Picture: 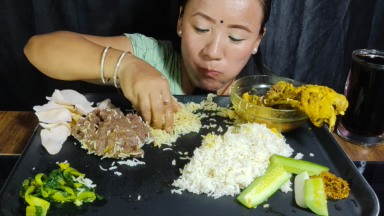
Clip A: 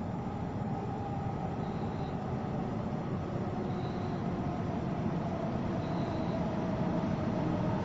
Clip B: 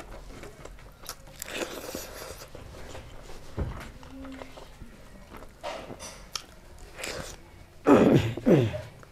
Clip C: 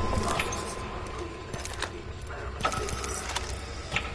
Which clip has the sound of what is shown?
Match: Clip B